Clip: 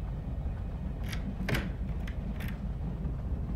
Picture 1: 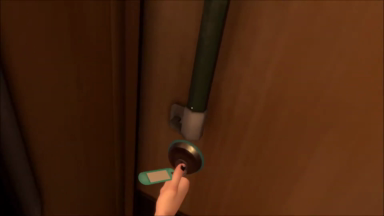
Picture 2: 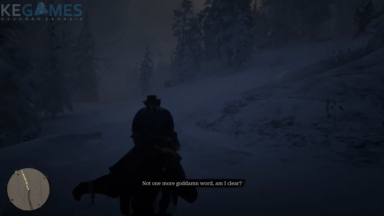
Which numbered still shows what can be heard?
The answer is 1